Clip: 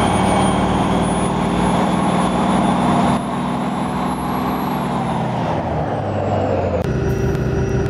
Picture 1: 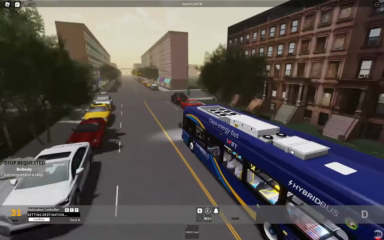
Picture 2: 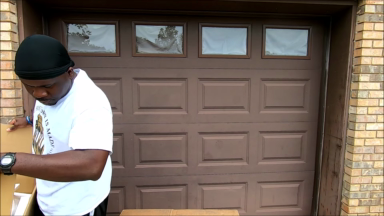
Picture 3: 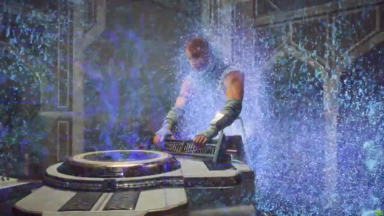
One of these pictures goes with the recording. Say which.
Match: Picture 1